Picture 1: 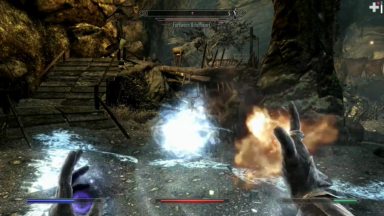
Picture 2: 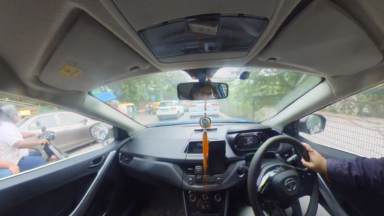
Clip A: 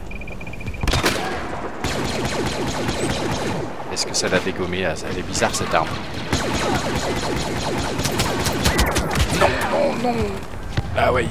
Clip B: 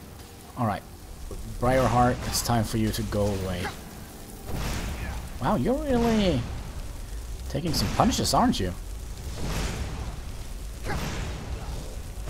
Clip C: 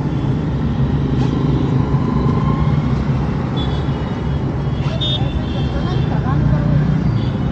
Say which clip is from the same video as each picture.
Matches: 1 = B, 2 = C